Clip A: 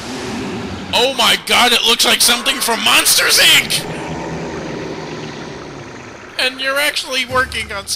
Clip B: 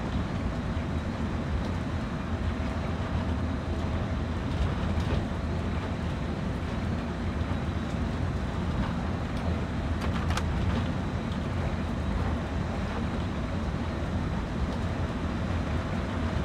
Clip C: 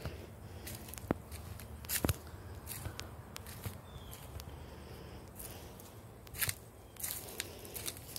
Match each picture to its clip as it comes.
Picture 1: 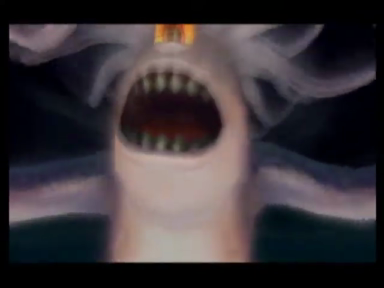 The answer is A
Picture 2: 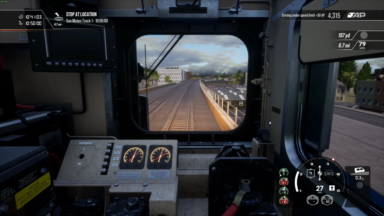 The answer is B